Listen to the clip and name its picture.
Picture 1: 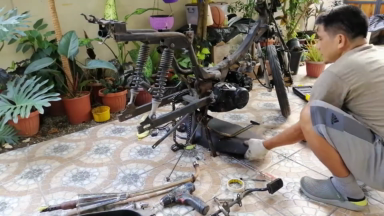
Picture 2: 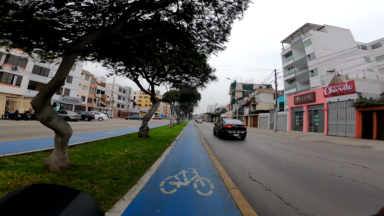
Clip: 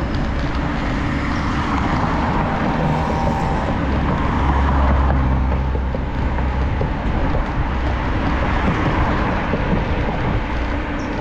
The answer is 2